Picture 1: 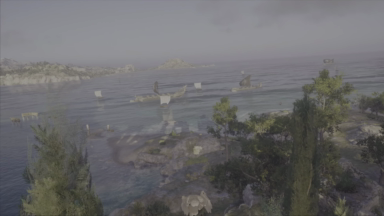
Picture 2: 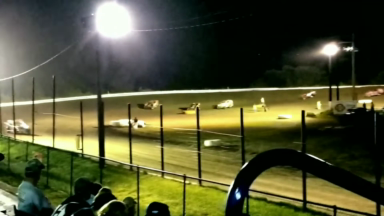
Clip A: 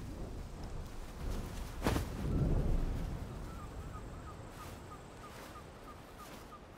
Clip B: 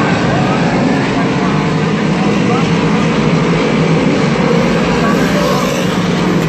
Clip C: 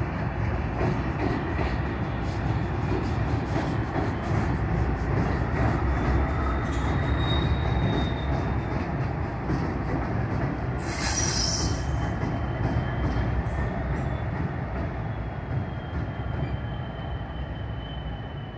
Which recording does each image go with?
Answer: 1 A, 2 B